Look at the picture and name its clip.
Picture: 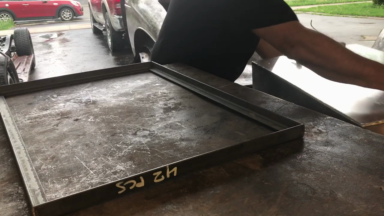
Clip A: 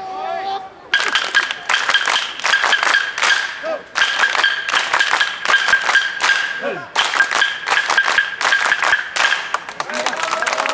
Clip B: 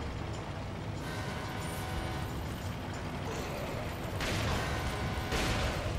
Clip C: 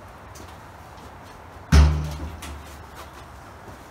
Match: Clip C